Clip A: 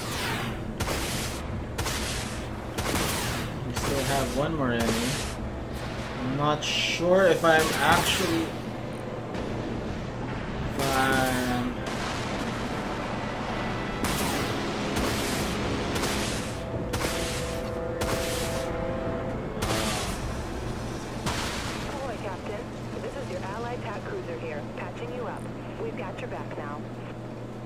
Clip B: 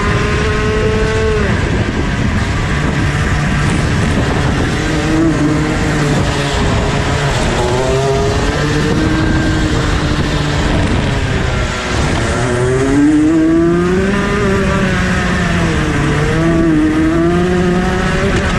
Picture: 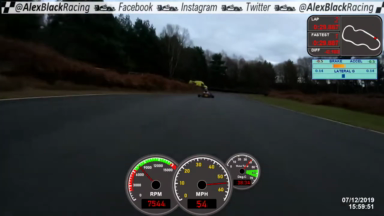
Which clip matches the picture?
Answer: B